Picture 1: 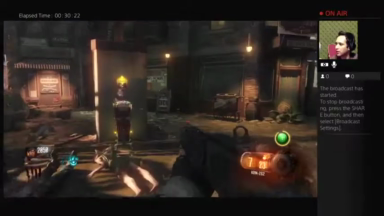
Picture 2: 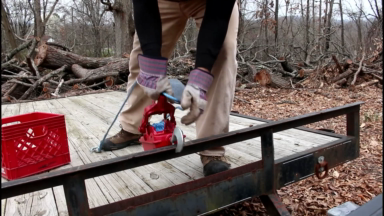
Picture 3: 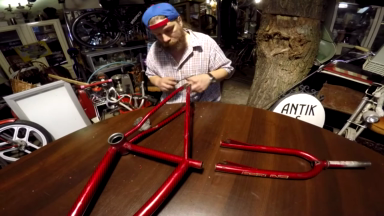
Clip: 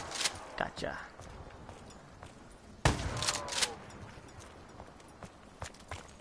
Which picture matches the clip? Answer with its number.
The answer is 1